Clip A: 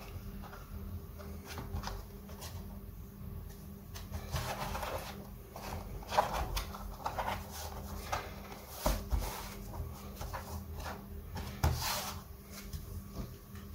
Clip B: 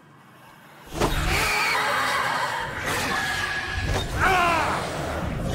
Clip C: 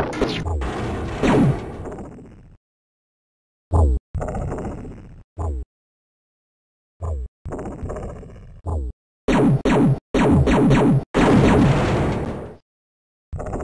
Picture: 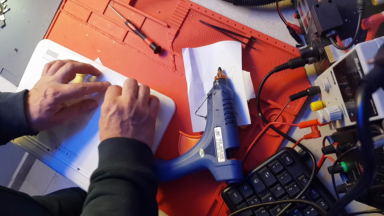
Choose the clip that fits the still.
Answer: A